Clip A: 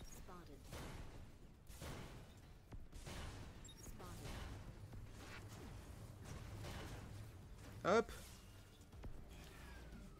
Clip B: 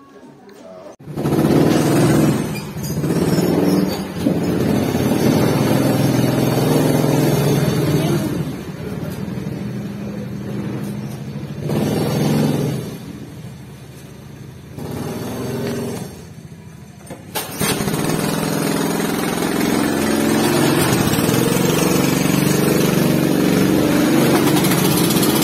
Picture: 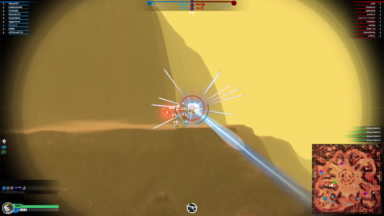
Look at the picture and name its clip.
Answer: A